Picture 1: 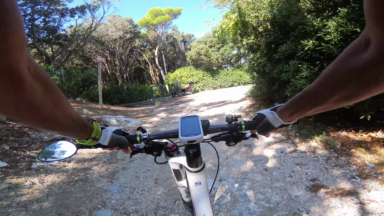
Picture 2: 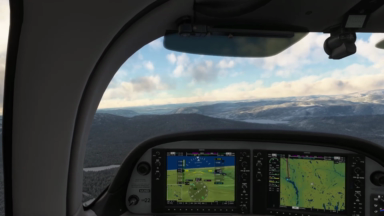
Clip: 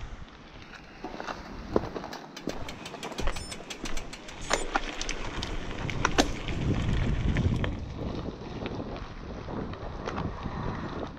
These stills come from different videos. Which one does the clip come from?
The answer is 1